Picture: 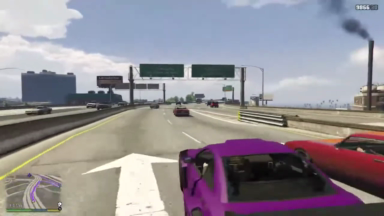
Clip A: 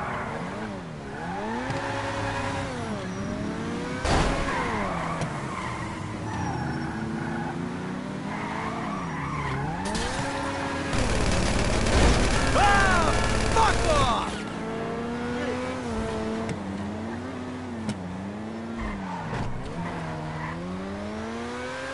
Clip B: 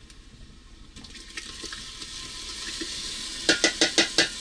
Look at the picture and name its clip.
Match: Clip A